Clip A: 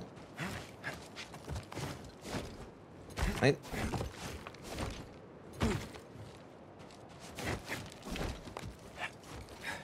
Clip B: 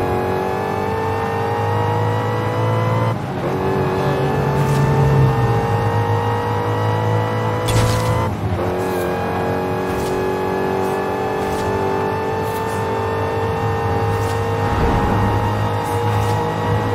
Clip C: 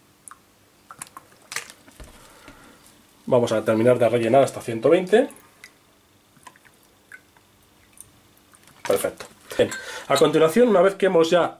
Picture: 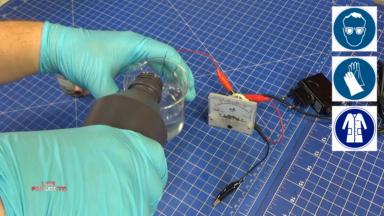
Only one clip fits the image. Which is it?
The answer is C